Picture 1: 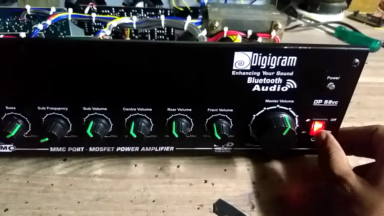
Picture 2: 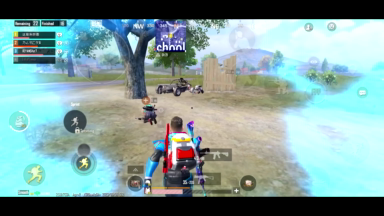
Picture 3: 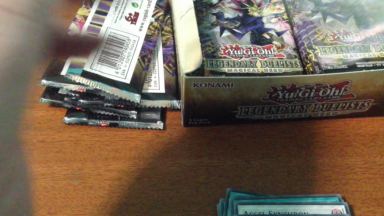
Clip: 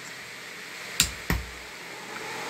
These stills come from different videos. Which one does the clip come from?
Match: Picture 1